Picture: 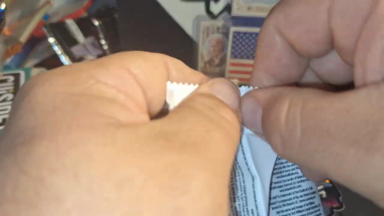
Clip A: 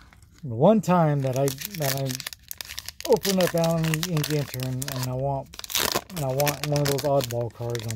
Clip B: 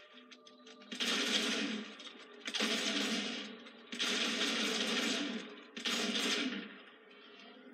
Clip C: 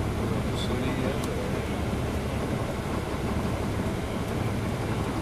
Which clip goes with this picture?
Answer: A